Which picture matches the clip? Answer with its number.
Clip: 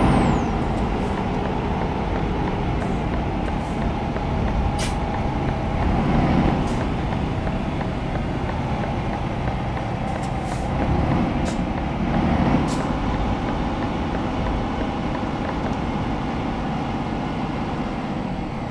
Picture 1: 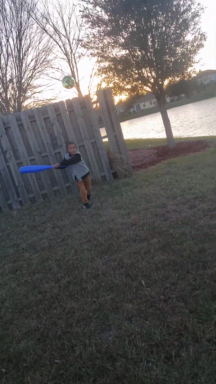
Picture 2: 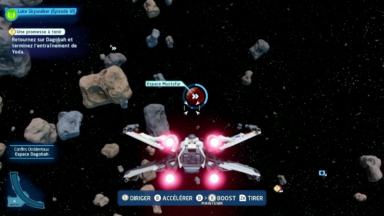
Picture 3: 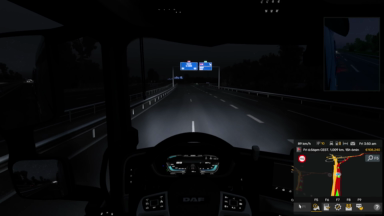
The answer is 3